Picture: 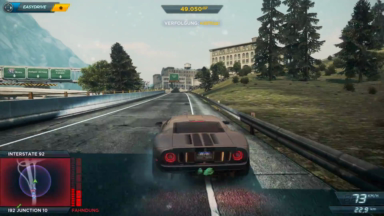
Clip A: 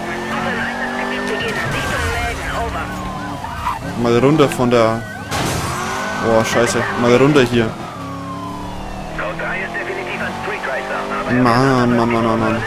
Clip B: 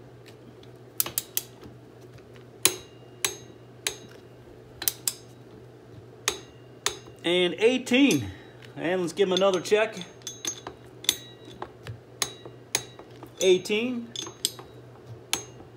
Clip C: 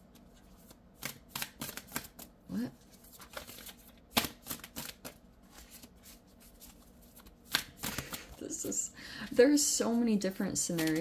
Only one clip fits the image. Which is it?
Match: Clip A